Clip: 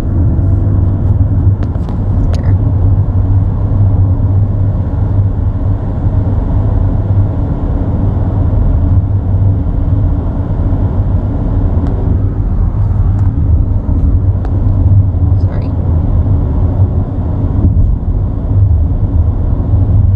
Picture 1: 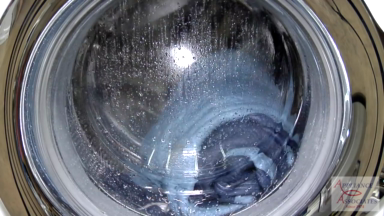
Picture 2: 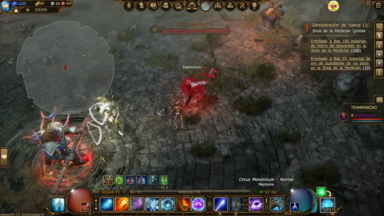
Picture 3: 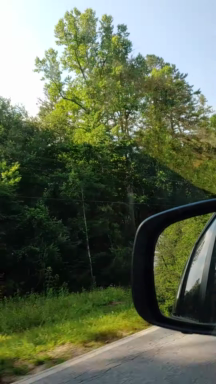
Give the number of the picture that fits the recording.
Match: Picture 3